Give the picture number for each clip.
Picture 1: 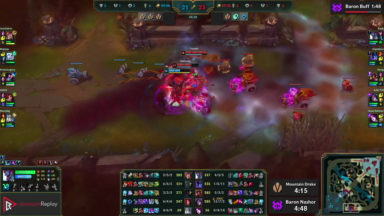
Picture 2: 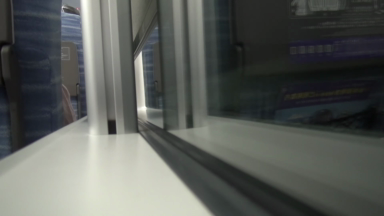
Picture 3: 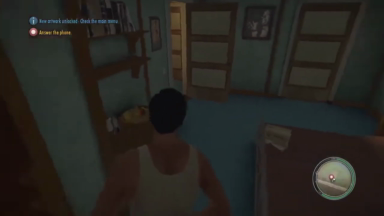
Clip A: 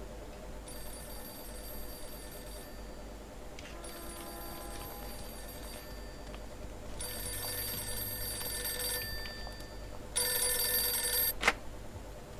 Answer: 3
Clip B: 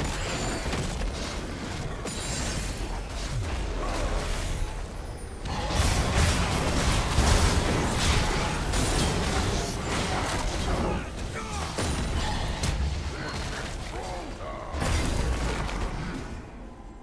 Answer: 1